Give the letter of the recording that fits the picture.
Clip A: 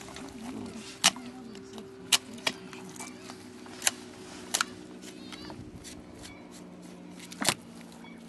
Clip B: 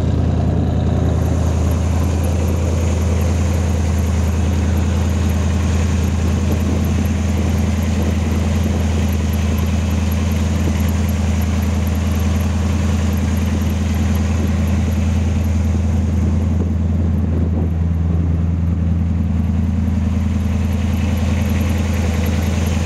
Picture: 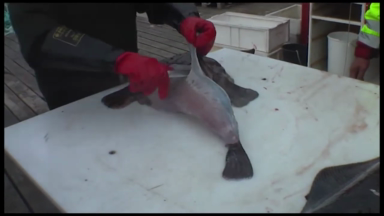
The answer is A